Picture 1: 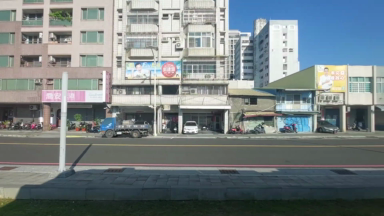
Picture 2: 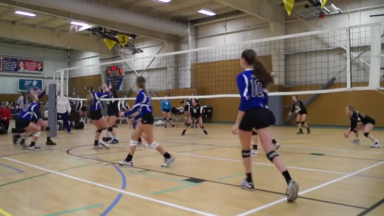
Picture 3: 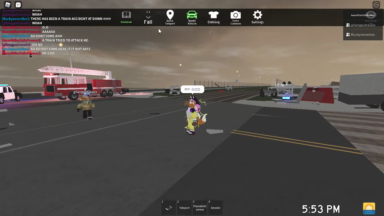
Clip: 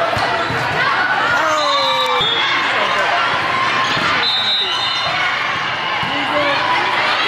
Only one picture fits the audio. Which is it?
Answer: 2